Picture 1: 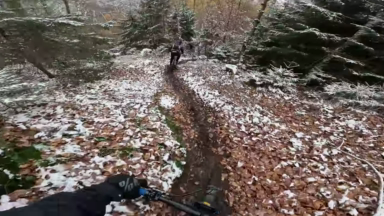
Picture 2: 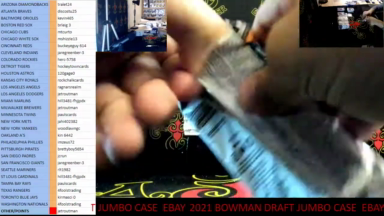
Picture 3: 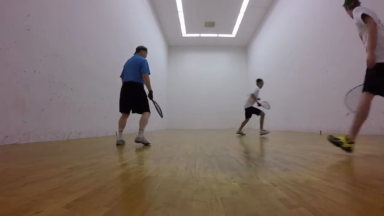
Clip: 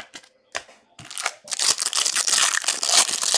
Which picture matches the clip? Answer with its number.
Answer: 2